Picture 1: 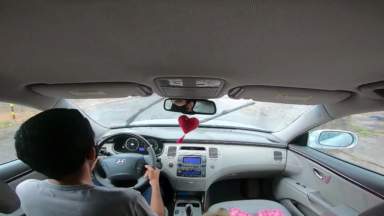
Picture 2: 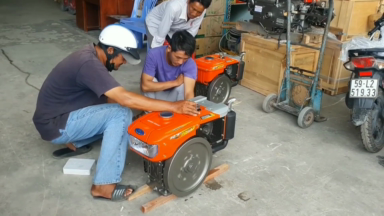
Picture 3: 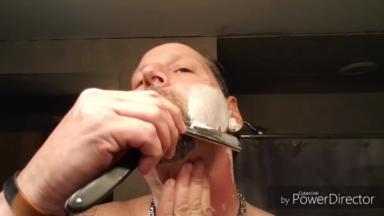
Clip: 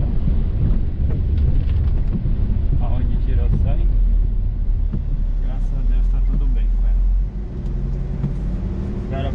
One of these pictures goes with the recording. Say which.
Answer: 1